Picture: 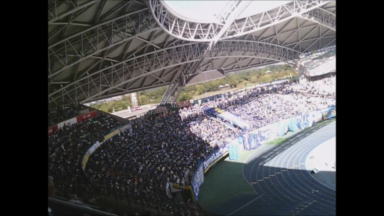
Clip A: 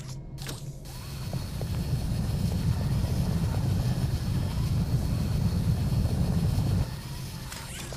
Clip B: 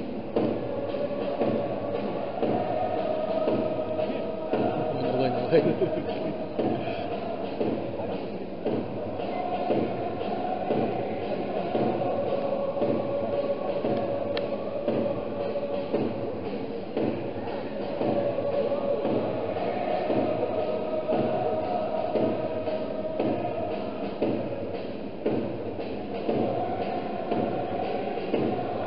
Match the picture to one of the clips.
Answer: B